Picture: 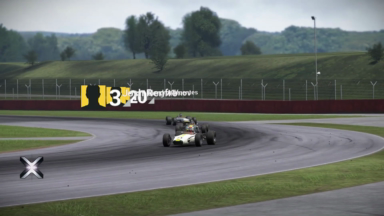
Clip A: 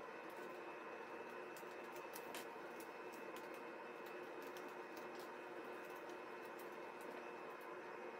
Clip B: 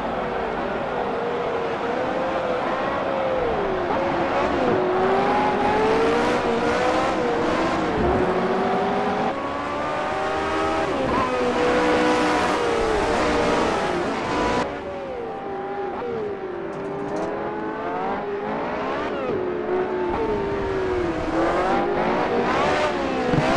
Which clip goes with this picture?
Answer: B